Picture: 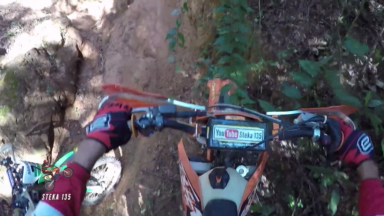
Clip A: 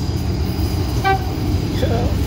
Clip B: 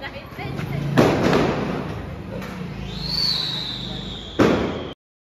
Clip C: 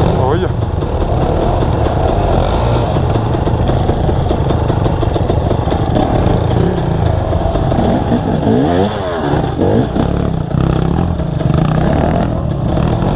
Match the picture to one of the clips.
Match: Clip C